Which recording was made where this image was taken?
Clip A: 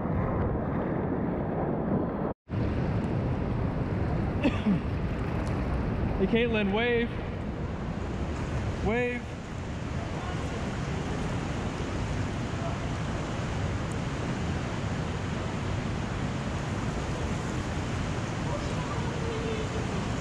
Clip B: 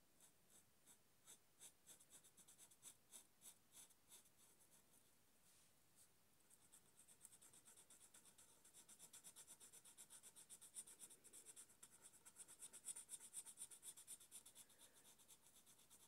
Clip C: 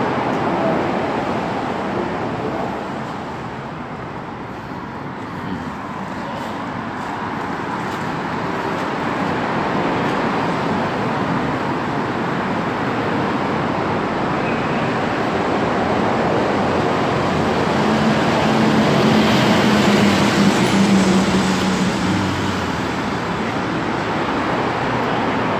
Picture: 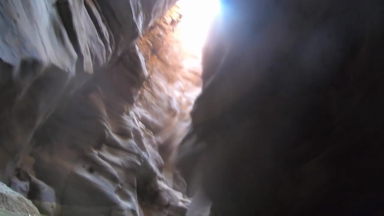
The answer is A